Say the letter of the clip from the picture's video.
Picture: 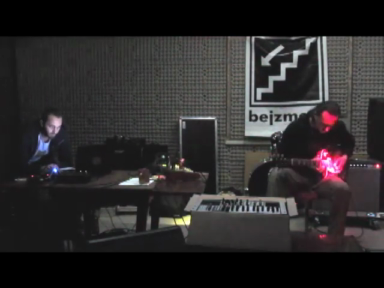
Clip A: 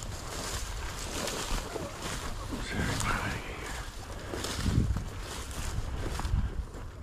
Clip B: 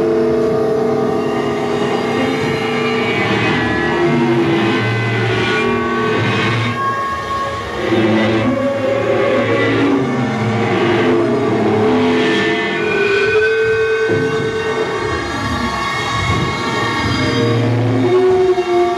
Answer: B